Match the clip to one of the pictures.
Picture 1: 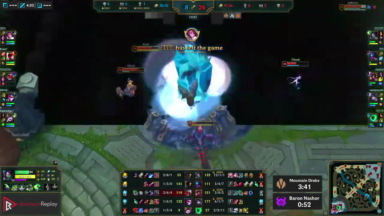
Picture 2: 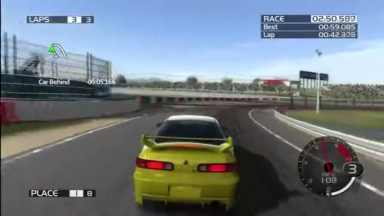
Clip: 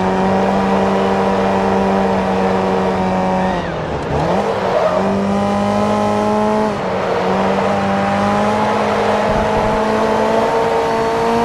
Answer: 2